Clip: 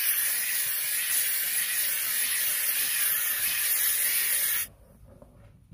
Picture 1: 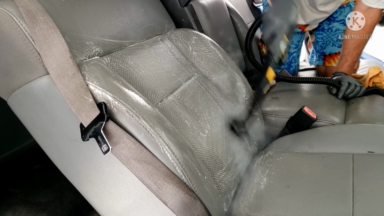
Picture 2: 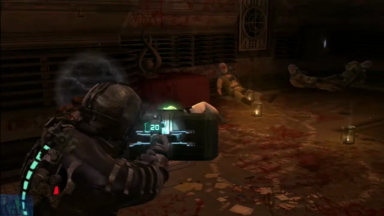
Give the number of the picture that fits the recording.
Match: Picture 1